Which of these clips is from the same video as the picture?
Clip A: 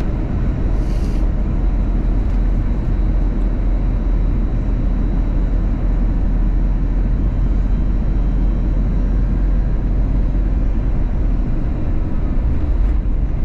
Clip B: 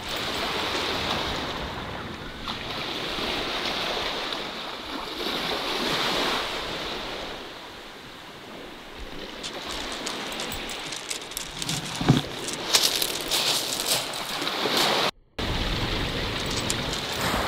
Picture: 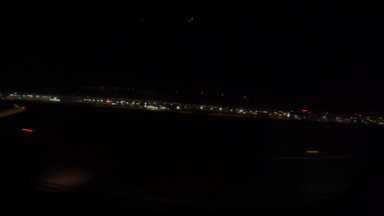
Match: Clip A